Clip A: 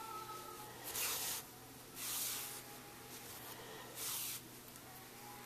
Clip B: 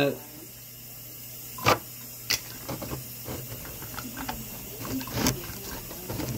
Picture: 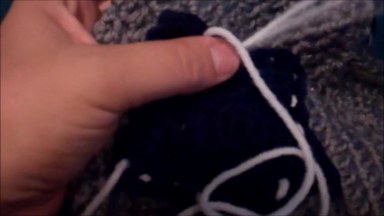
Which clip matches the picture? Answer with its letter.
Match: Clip A